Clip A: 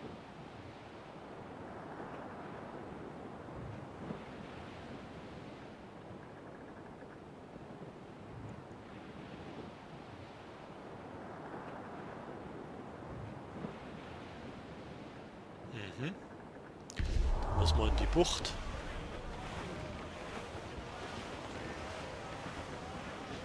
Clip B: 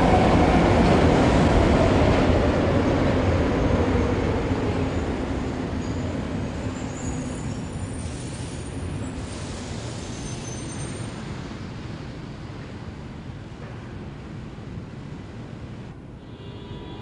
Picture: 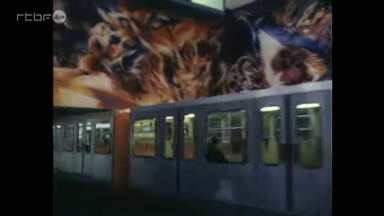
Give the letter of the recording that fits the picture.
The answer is B